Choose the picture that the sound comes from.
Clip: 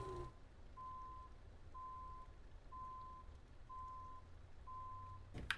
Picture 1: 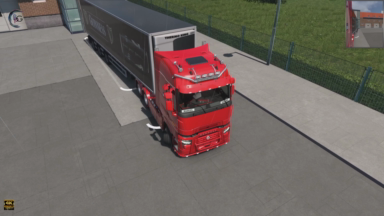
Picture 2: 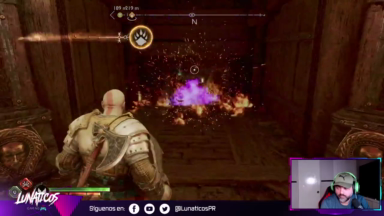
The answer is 1